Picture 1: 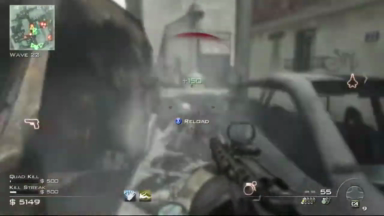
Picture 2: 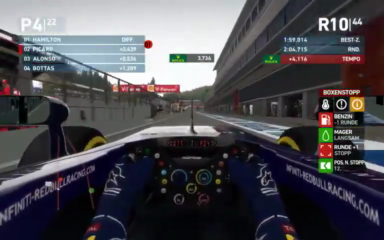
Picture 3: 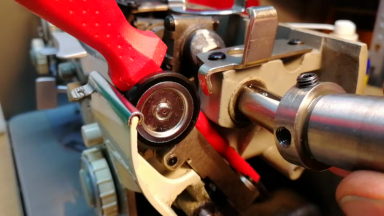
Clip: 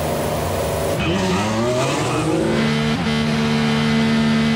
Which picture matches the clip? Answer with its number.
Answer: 2